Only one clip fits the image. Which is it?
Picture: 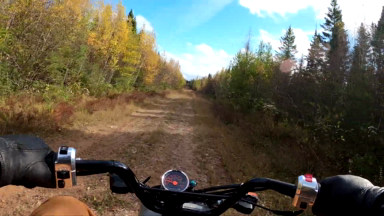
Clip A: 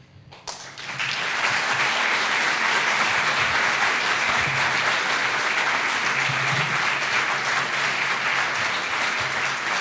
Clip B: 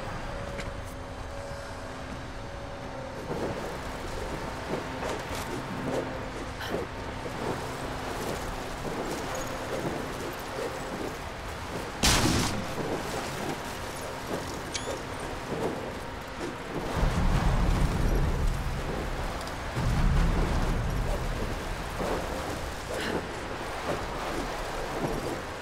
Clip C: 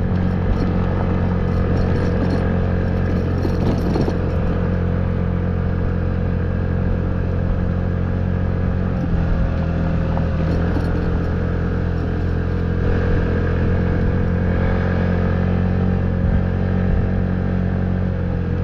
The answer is C